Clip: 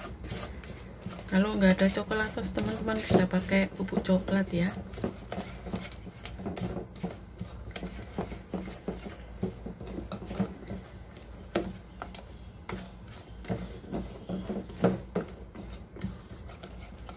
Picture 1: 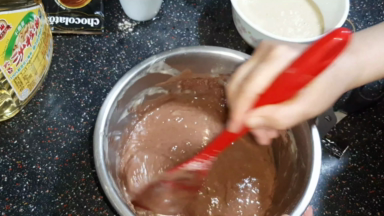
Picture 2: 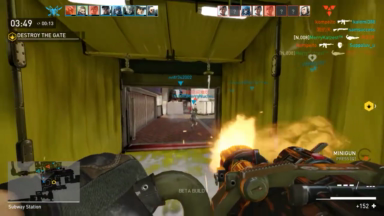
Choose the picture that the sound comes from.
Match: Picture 1